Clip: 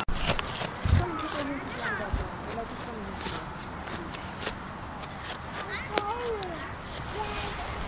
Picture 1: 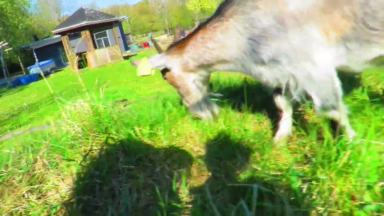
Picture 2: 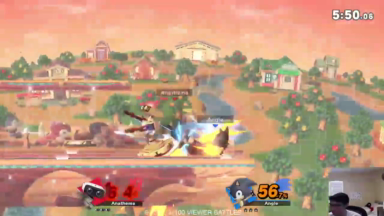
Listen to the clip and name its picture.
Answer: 1